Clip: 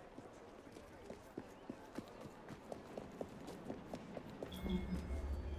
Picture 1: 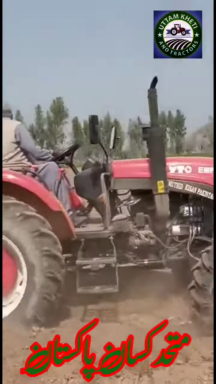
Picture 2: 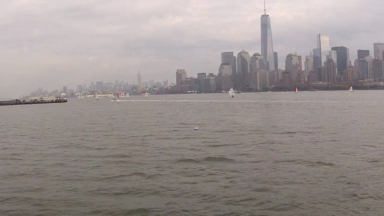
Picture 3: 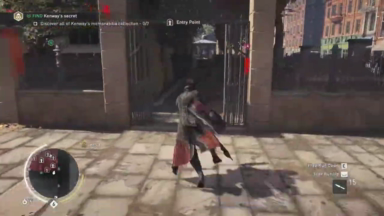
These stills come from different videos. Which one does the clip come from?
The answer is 3